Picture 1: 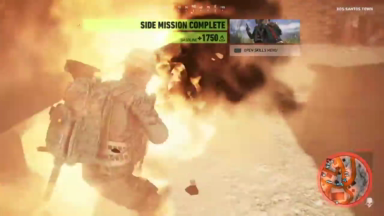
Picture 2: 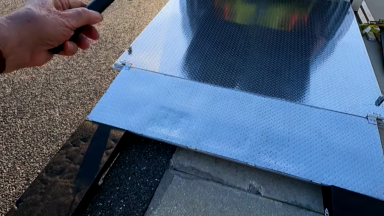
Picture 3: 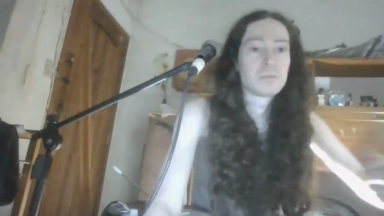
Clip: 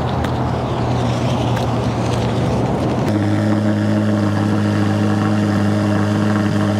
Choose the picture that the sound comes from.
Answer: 2